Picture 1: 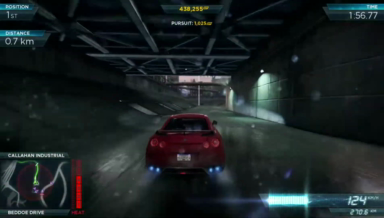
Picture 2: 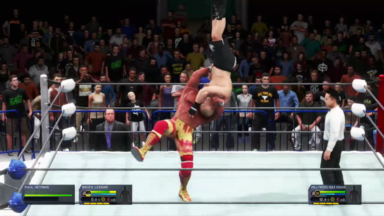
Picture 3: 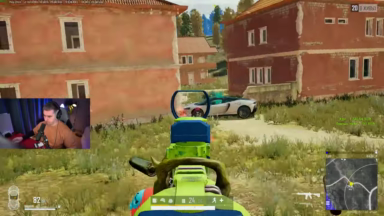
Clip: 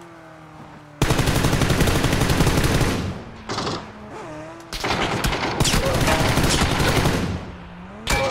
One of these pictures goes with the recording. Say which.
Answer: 3